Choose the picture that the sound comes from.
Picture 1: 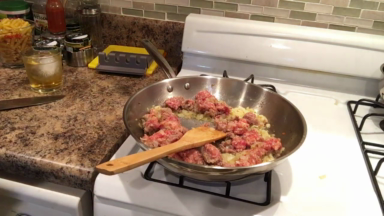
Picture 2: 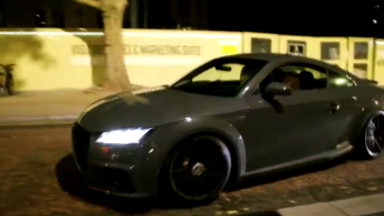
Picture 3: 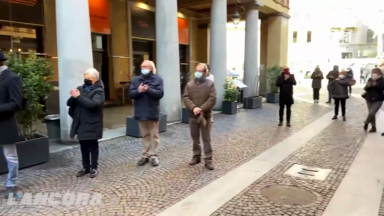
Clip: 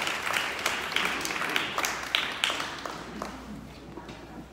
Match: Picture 3